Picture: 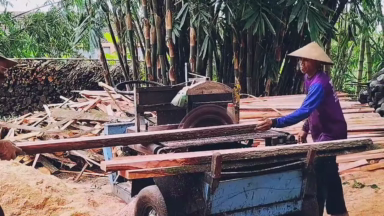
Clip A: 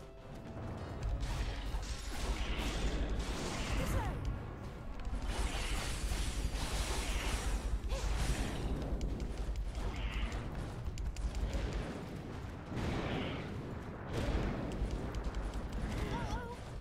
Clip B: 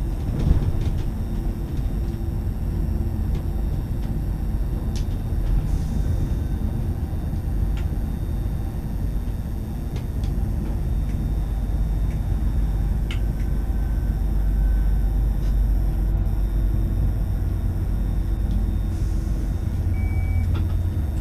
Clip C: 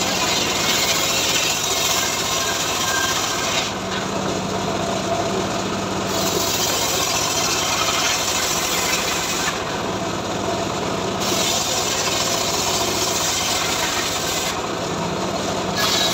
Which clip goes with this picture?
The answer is C